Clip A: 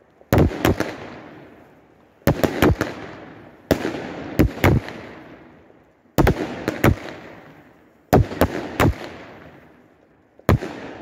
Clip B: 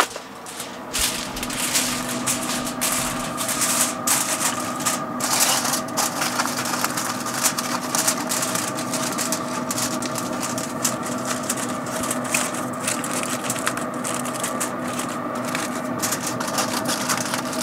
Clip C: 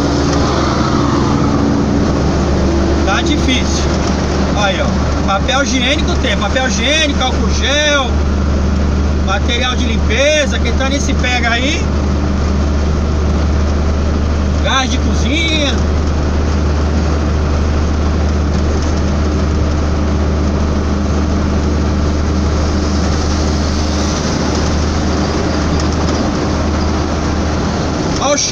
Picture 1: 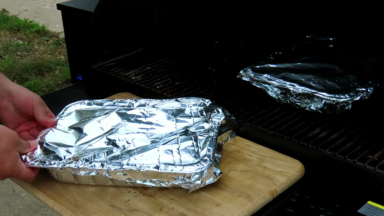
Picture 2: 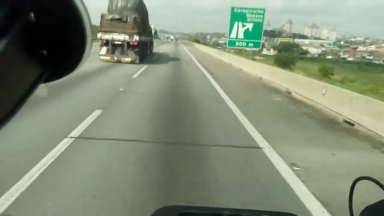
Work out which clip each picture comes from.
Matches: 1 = B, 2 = C